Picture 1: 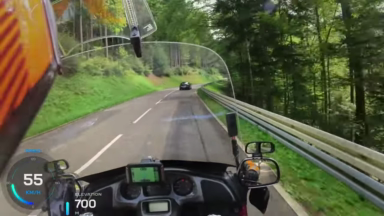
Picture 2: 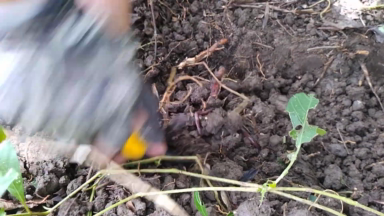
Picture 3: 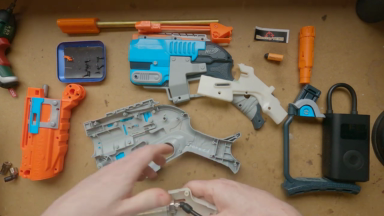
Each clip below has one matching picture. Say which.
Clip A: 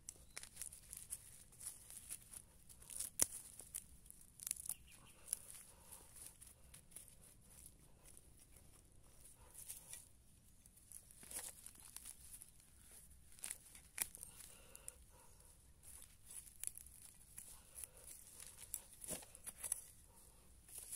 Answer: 2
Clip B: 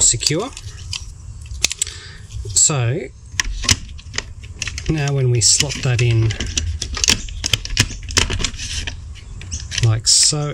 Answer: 3